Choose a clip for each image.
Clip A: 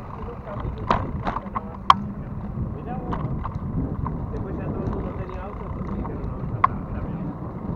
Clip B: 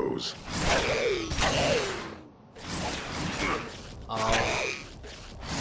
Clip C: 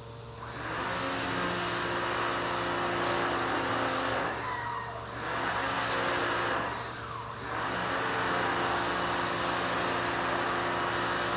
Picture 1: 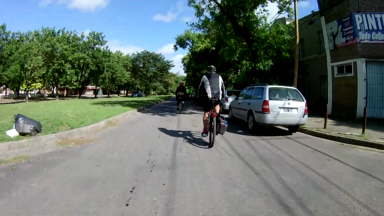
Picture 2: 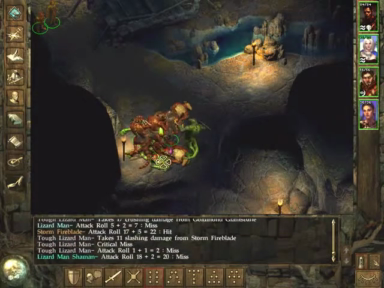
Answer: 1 A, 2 B